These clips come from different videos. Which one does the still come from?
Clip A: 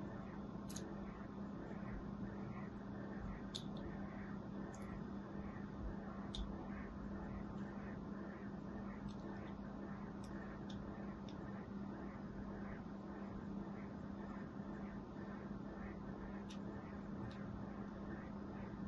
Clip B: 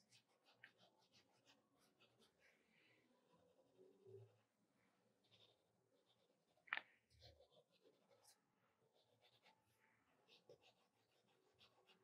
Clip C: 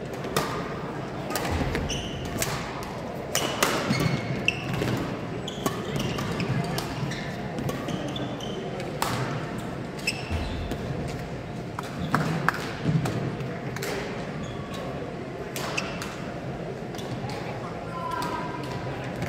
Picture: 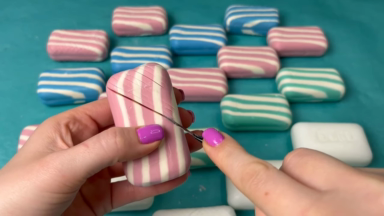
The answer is A